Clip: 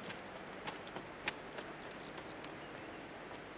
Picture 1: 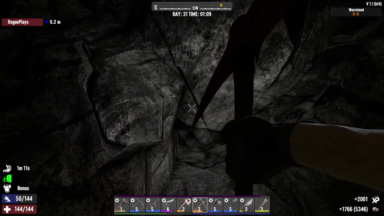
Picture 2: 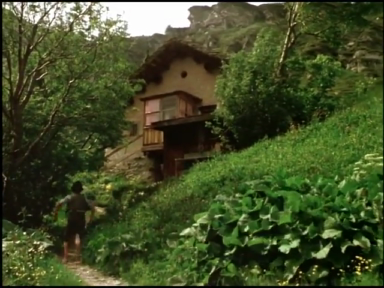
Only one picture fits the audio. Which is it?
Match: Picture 2